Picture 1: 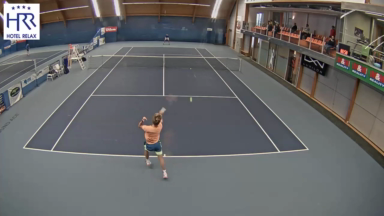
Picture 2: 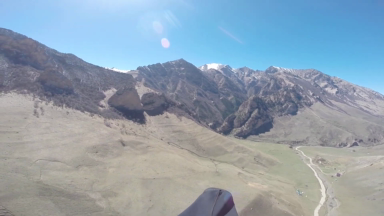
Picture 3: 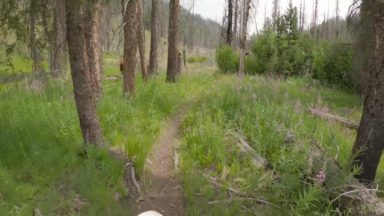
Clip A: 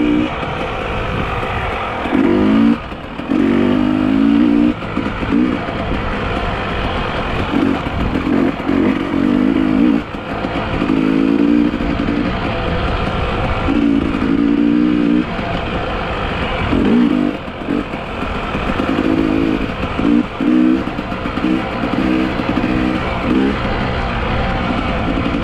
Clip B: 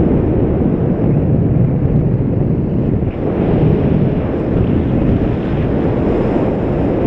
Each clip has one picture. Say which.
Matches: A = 3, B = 2